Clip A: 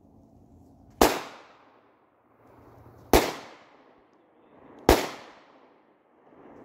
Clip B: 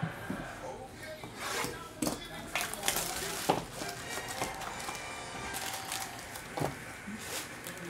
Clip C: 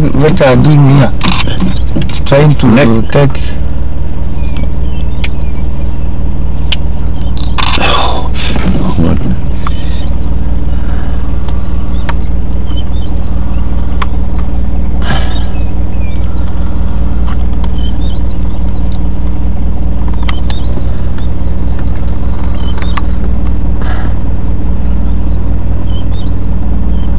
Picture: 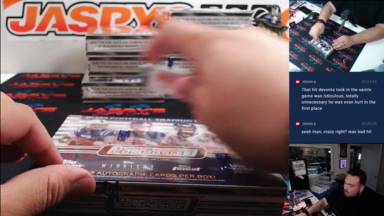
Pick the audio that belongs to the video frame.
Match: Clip B